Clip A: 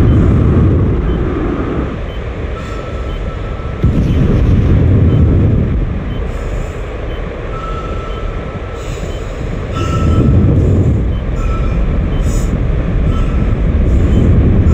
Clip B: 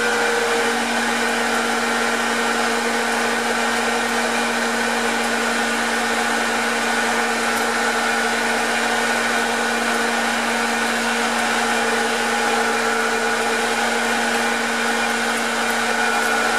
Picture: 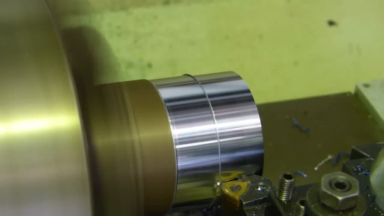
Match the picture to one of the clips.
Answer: B